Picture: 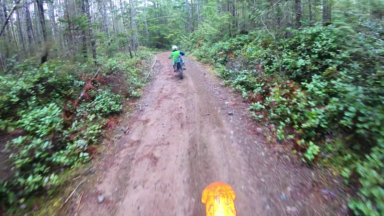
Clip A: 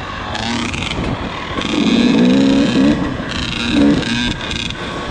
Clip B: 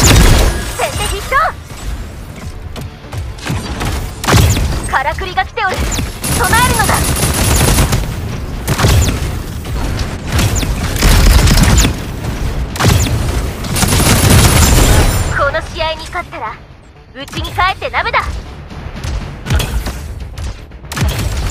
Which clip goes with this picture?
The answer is A